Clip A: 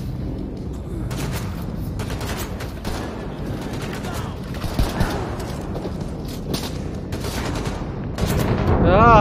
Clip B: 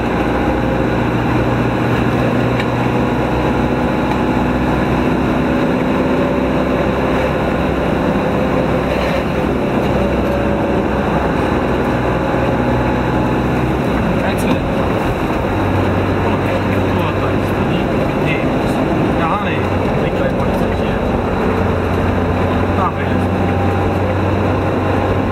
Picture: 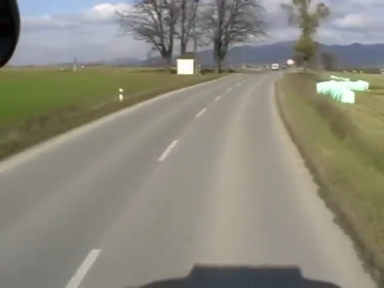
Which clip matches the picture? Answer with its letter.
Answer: B